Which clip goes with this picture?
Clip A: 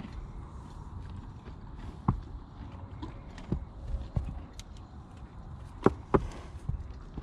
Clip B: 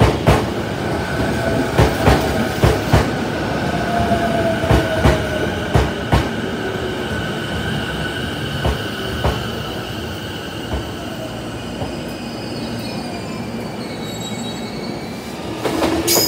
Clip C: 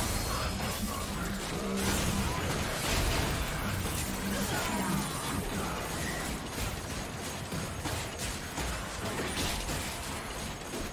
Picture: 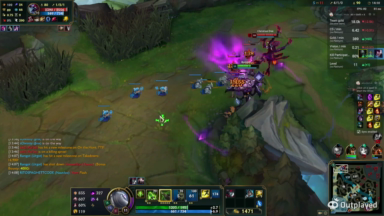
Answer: C